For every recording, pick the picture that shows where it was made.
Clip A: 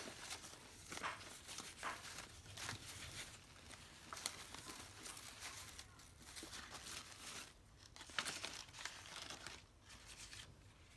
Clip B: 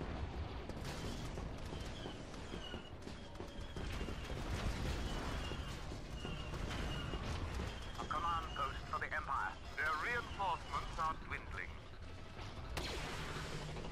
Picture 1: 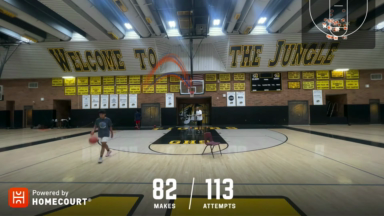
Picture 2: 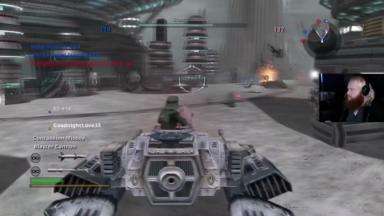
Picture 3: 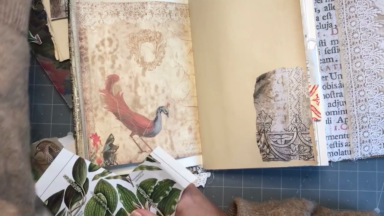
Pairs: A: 3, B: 2